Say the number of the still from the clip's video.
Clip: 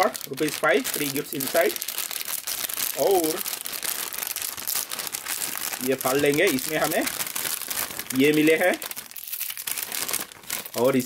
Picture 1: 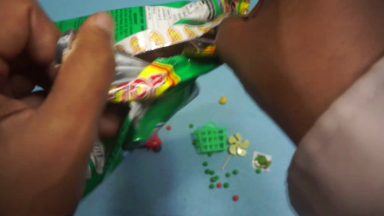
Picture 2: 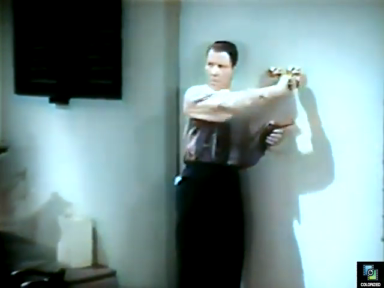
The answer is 1